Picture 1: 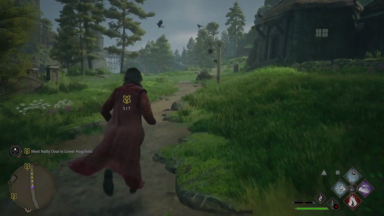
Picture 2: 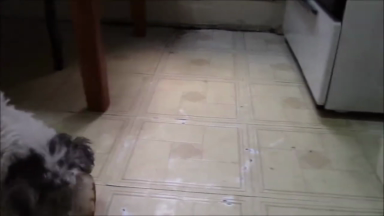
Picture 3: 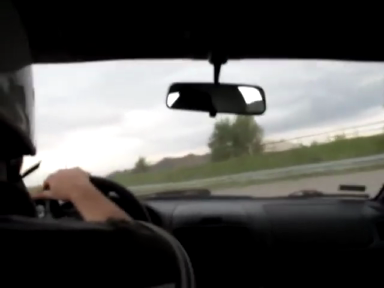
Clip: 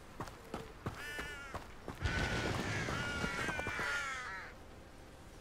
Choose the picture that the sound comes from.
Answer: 1